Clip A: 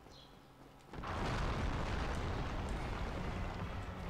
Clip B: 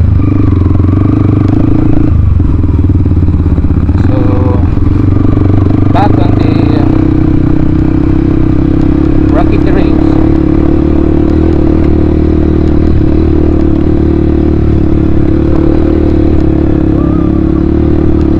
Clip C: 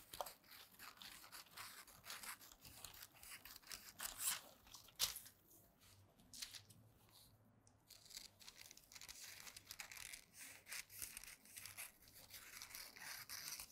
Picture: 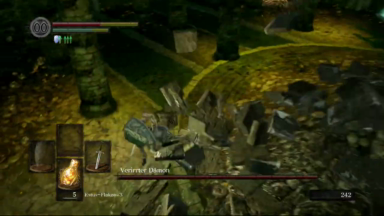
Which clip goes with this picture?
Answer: A